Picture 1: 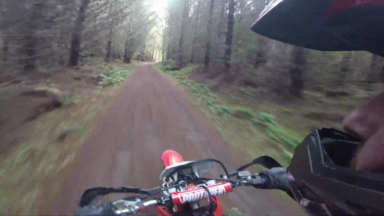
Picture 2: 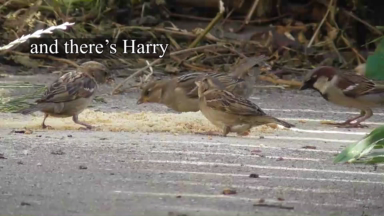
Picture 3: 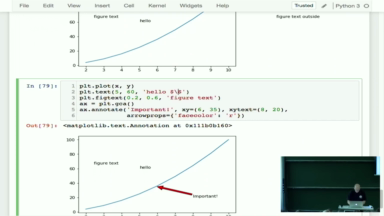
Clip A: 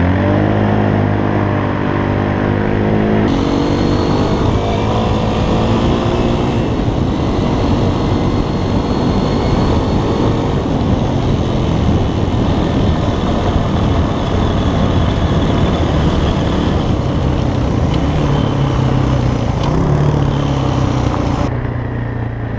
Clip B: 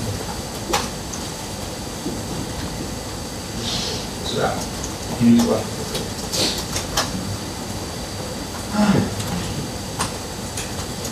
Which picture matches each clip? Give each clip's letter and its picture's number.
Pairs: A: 1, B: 3